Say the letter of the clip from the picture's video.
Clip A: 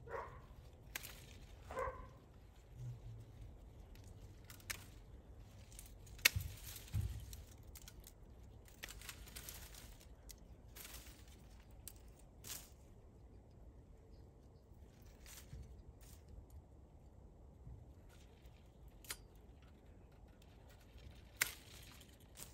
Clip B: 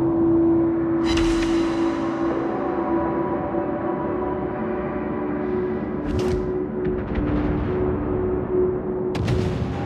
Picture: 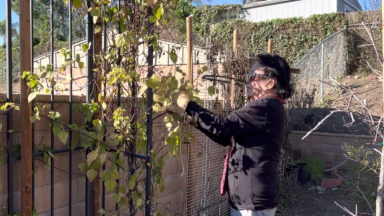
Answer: A